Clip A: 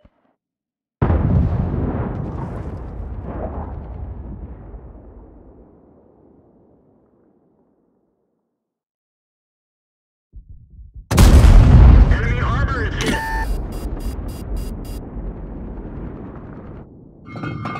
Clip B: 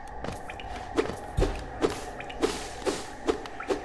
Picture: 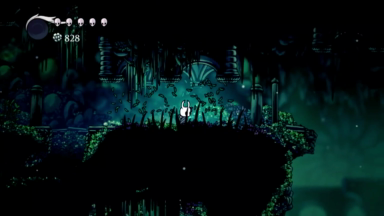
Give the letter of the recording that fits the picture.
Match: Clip B